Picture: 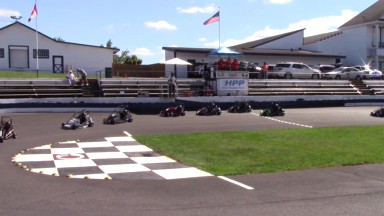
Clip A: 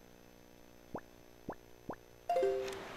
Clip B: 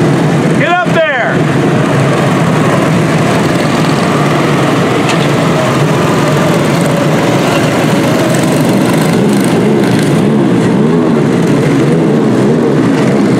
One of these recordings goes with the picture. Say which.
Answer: B